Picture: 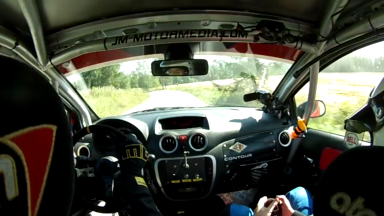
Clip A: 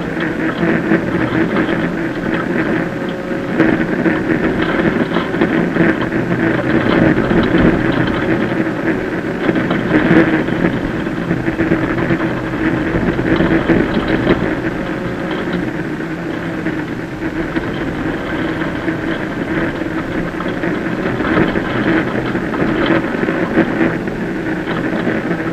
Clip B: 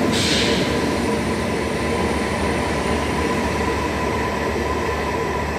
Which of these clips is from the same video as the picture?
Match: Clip A